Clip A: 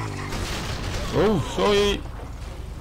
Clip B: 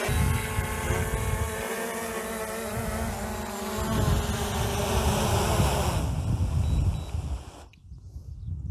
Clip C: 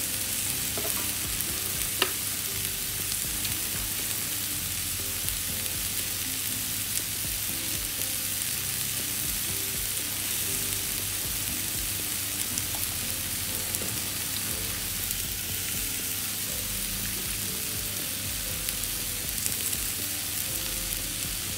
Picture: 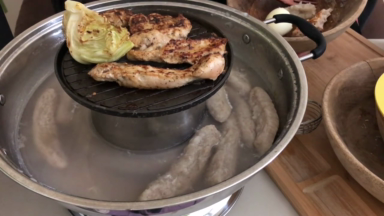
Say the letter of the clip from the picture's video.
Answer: C